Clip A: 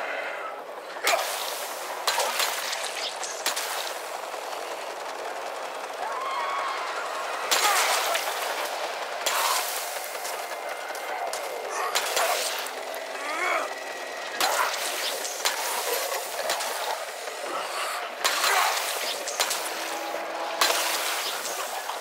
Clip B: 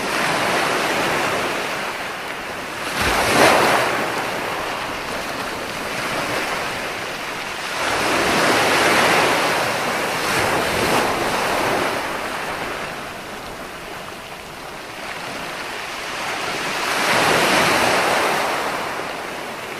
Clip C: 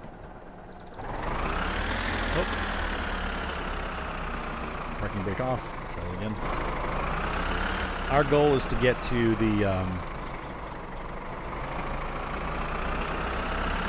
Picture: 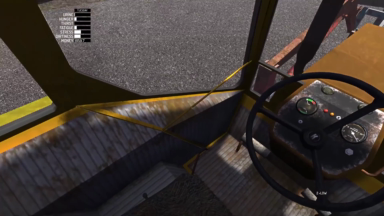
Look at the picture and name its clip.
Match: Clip C